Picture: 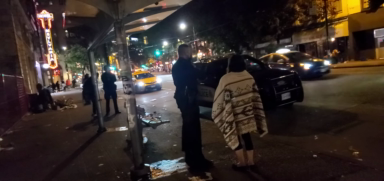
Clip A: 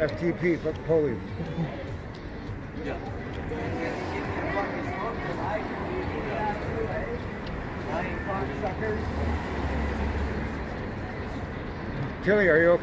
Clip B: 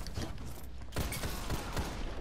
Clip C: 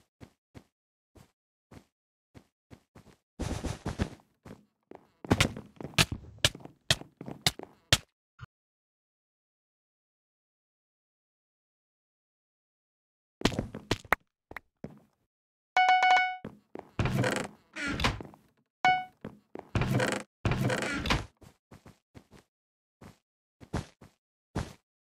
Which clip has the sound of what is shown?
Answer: A